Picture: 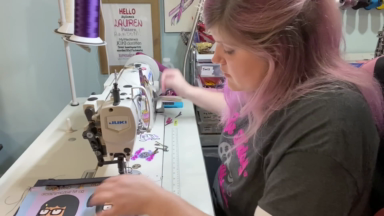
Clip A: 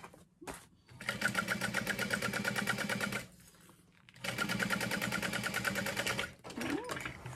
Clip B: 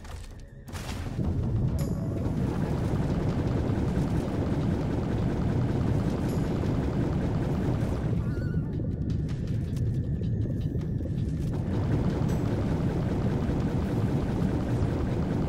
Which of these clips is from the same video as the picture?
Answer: A